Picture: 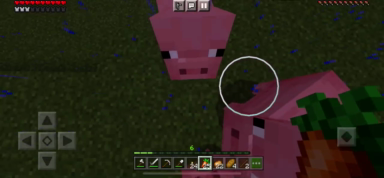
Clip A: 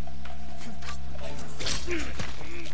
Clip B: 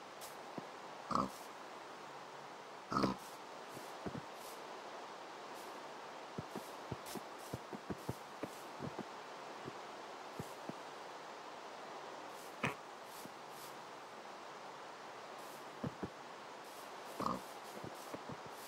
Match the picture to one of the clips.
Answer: B